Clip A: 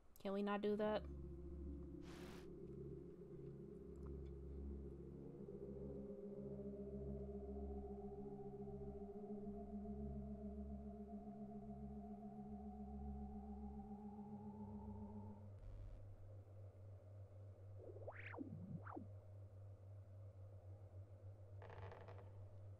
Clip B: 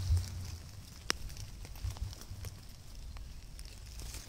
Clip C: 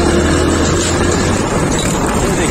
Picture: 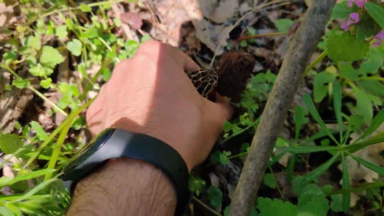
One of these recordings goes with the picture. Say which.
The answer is B